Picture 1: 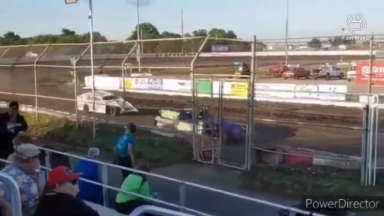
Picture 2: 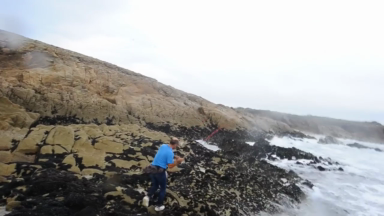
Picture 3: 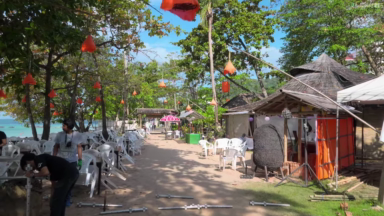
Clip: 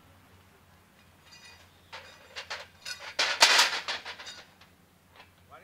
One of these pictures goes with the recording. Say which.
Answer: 3